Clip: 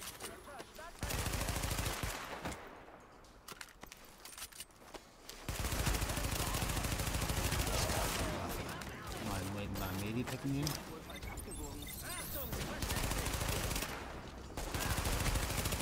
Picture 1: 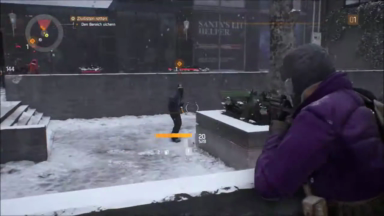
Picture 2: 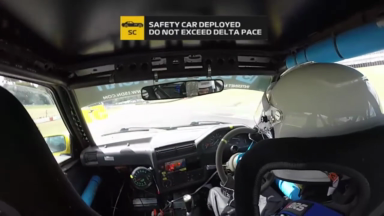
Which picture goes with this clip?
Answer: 1